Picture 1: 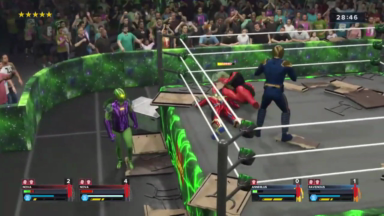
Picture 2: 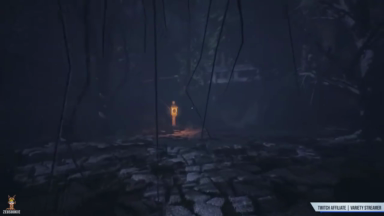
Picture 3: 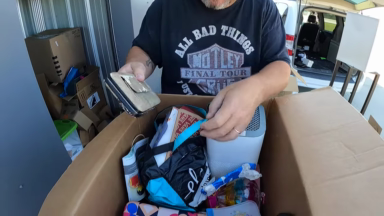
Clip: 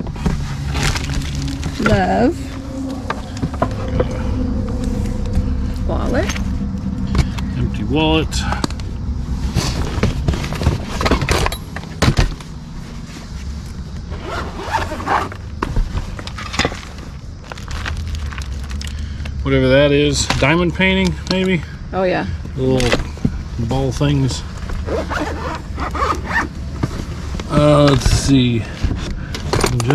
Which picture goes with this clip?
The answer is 3